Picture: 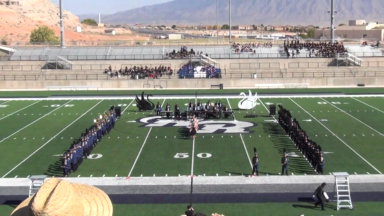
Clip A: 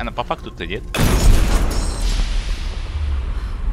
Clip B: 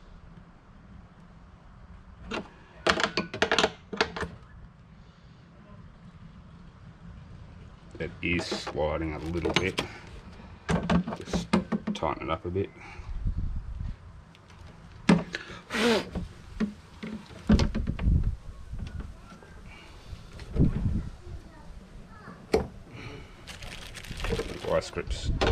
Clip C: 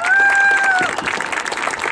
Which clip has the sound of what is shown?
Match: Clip C